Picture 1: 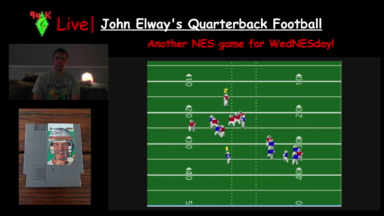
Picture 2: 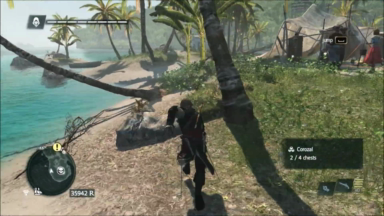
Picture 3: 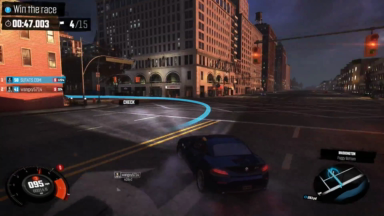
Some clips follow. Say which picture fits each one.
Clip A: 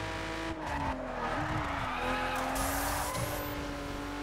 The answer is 3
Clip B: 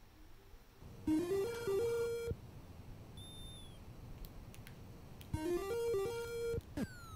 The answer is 1